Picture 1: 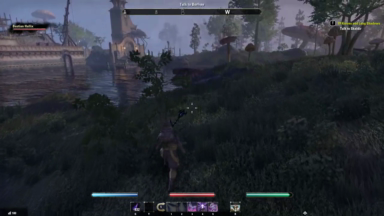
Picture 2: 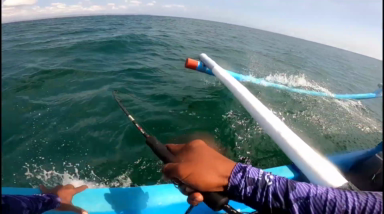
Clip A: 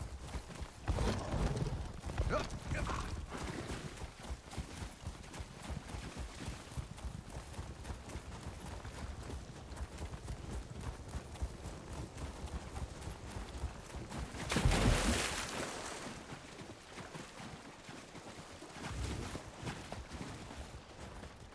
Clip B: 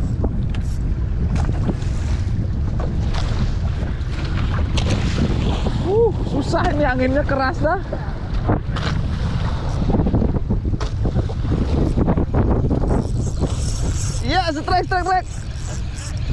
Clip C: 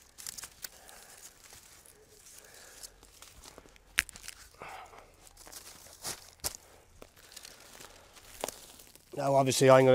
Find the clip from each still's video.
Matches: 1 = A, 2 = B